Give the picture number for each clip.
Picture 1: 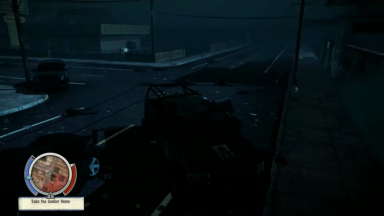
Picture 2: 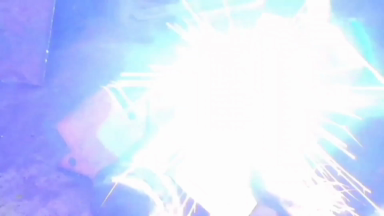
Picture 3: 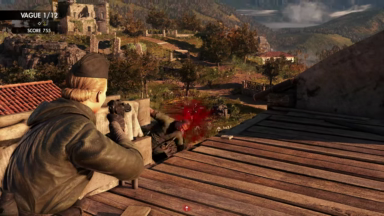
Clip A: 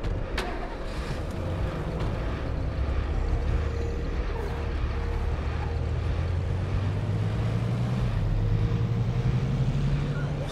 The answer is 1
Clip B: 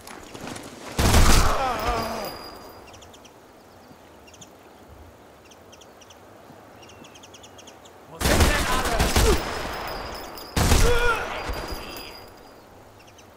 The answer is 3